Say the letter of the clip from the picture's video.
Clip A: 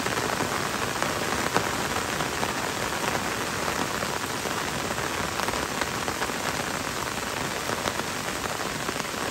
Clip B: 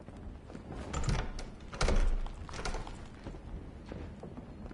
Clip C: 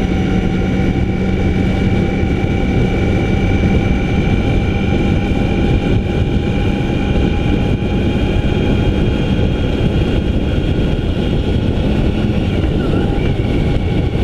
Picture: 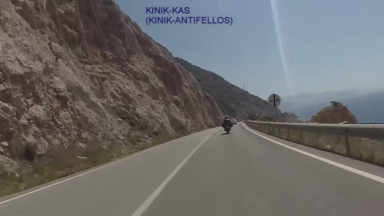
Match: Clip C